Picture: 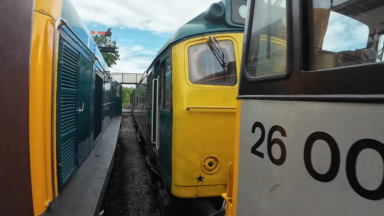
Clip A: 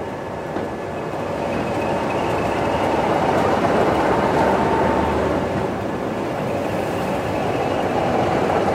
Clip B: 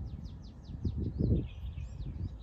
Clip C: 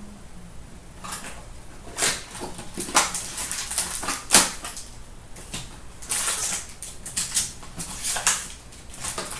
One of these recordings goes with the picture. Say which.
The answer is A